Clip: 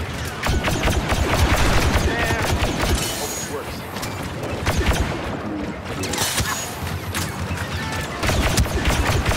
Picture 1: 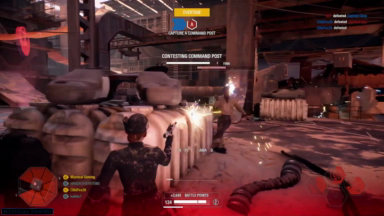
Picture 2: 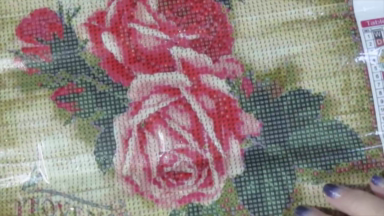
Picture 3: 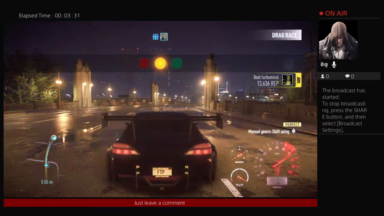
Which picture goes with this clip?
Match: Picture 1